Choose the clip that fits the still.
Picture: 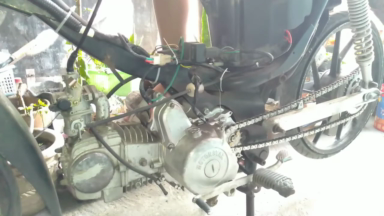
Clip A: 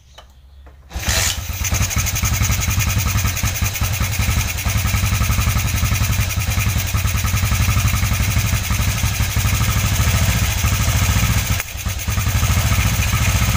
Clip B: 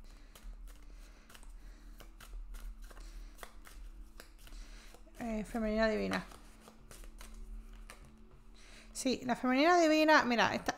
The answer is A